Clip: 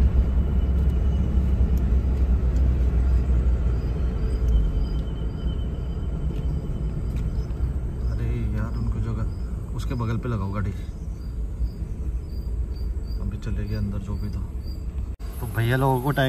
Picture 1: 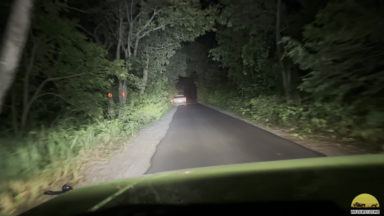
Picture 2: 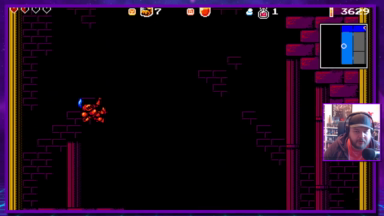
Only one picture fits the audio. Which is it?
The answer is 1